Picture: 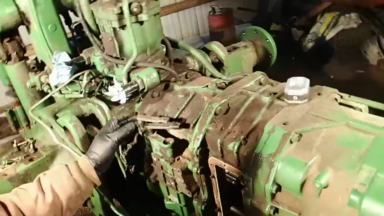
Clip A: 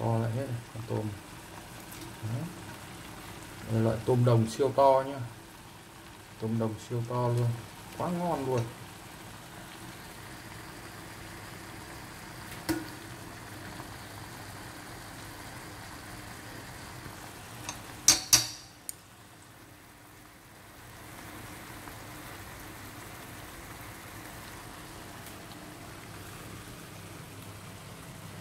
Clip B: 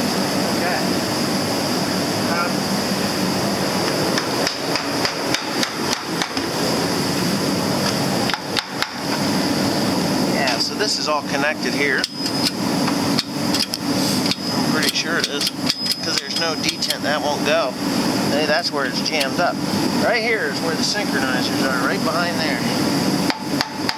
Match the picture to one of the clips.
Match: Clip B